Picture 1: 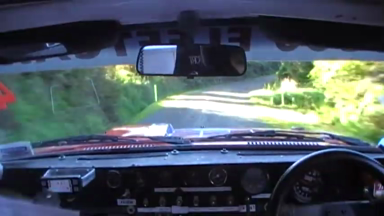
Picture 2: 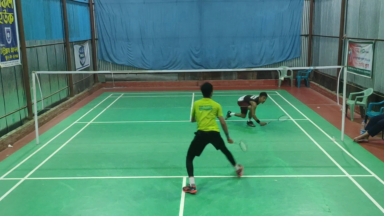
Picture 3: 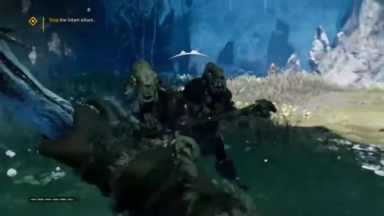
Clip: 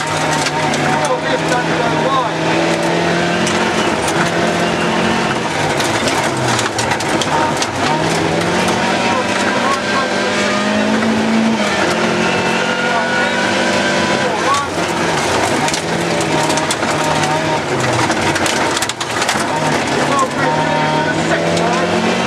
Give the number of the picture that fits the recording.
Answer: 1